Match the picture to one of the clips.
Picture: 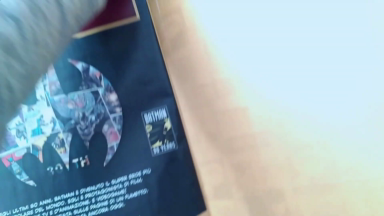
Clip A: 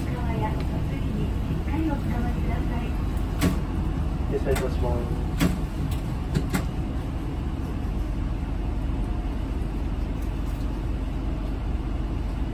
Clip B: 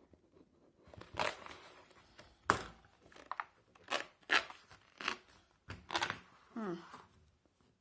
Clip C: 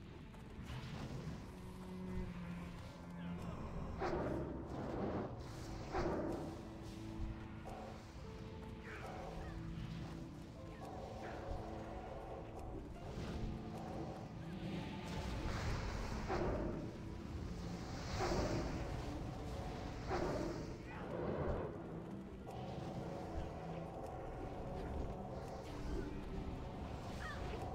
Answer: B